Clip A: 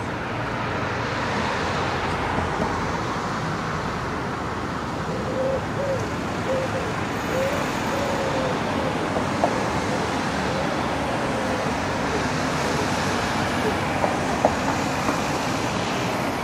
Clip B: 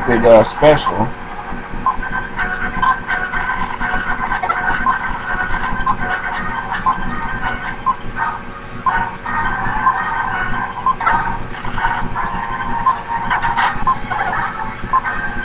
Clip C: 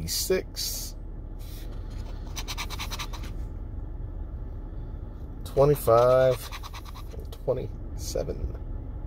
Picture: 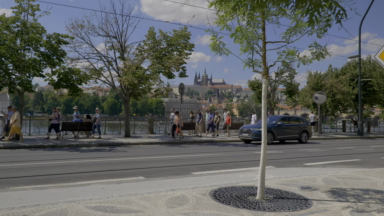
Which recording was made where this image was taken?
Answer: A